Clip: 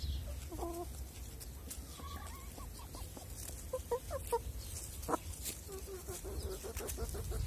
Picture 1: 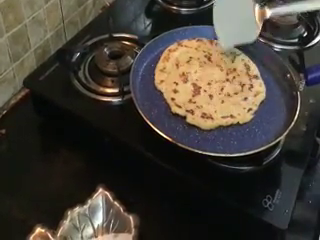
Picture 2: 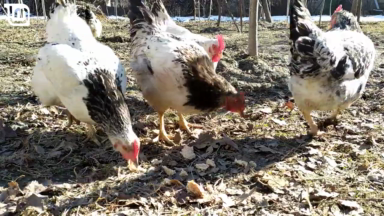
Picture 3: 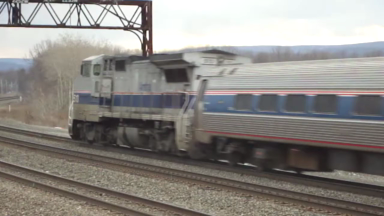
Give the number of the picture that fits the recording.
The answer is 2